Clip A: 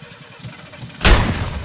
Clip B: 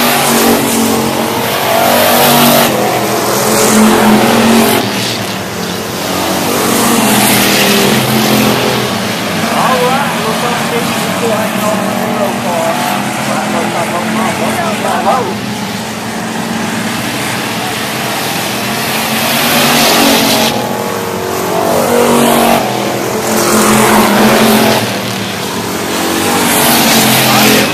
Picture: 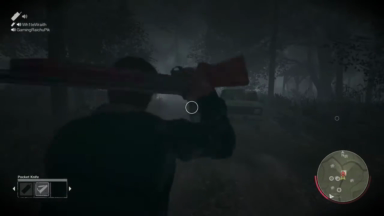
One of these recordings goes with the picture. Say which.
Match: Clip A